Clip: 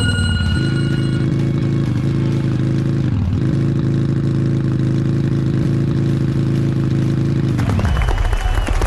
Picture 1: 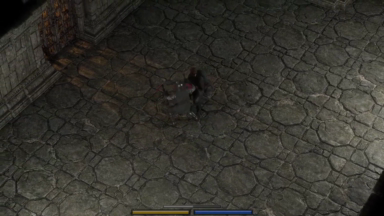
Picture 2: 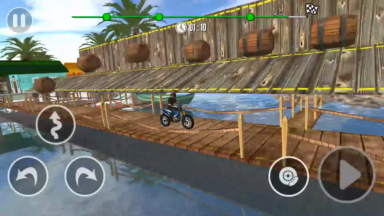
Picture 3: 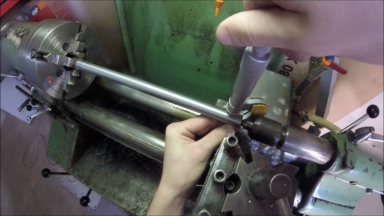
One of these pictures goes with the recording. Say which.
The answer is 2